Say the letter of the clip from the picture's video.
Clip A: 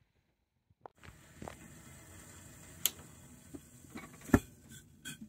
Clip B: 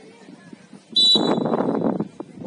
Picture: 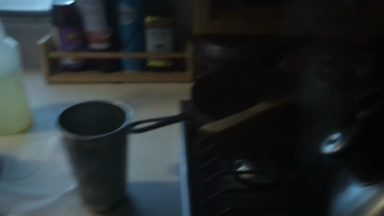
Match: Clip A